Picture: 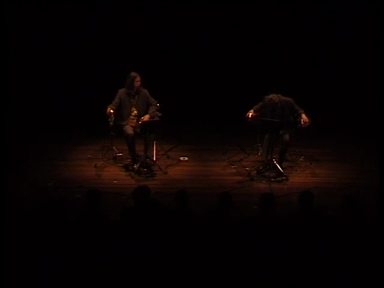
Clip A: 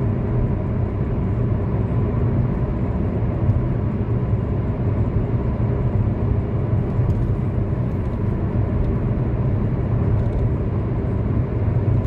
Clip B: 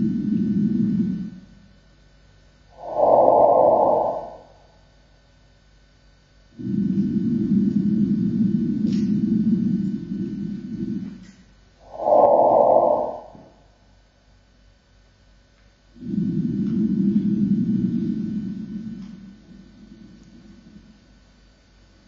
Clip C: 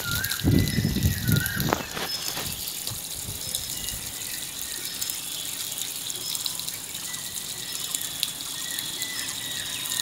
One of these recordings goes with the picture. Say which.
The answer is B